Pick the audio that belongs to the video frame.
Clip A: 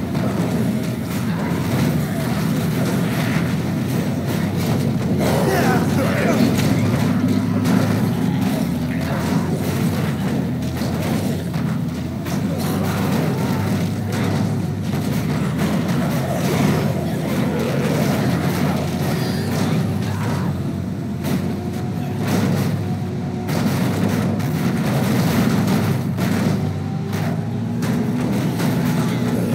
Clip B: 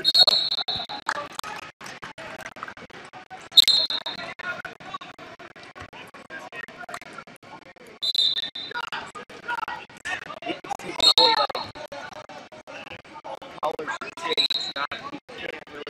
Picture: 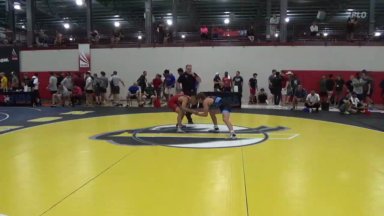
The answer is B